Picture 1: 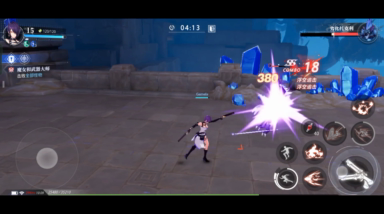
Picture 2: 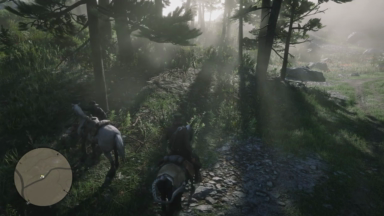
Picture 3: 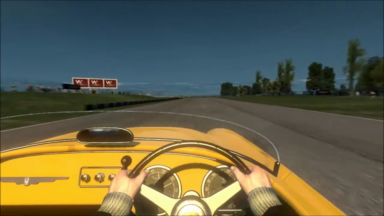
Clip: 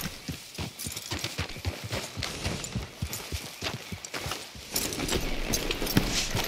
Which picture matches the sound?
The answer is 2